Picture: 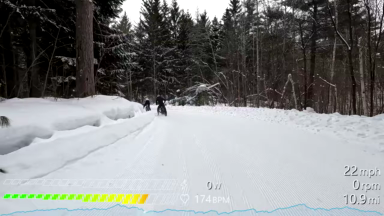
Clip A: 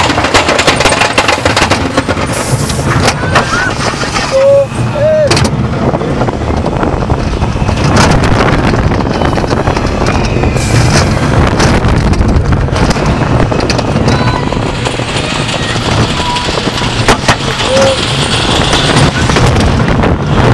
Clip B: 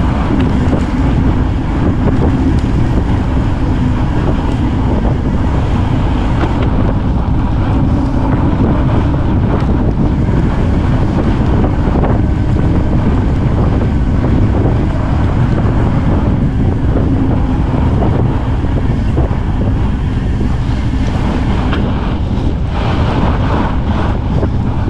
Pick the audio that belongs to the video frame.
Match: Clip B